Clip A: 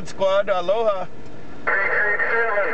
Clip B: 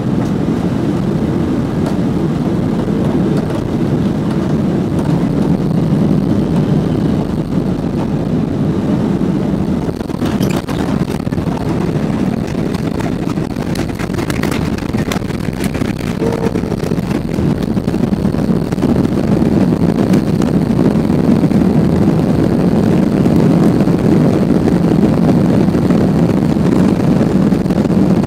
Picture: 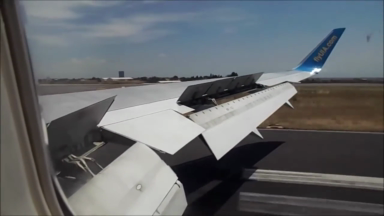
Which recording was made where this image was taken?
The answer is B